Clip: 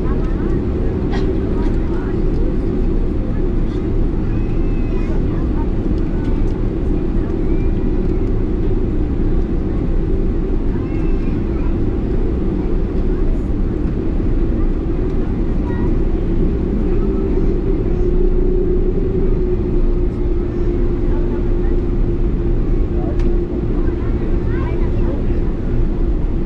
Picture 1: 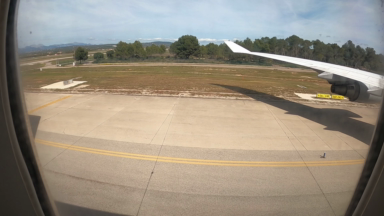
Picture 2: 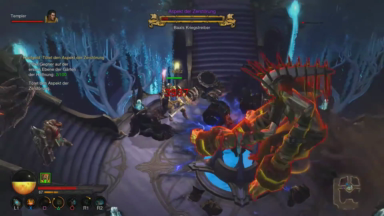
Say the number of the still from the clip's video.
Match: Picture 1